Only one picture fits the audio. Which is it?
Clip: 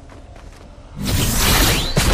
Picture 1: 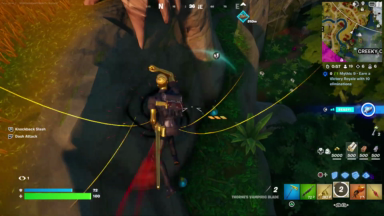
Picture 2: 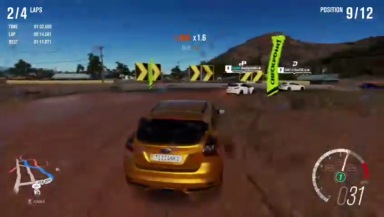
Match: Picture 1